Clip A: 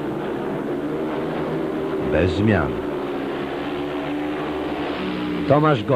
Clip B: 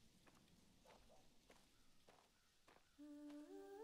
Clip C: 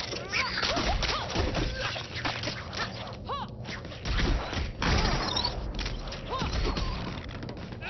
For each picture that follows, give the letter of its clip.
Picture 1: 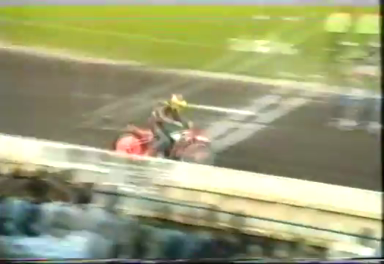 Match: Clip A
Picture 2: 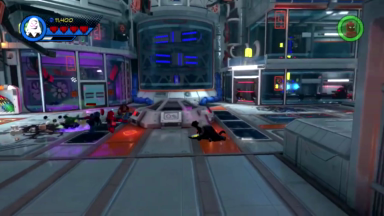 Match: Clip C